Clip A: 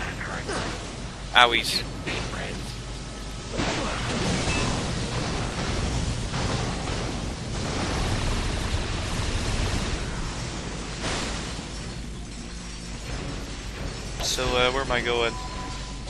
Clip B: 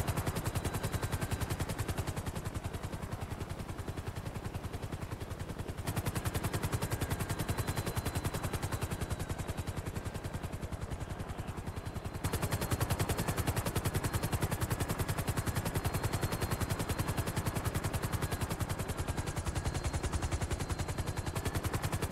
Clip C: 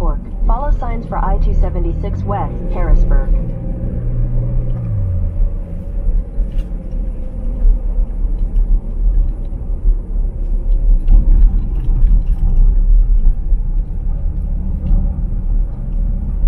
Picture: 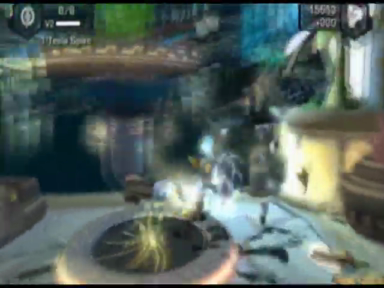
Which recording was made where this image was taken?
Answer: A